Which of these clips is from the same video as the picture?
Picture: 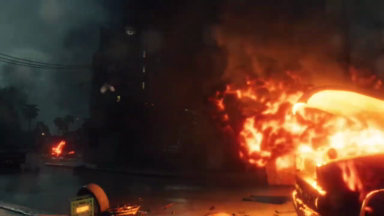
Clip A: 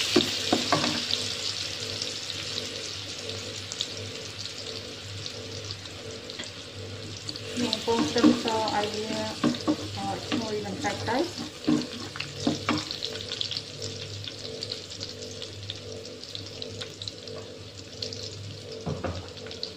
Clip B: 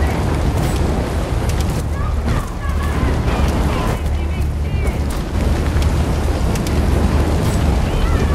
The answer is B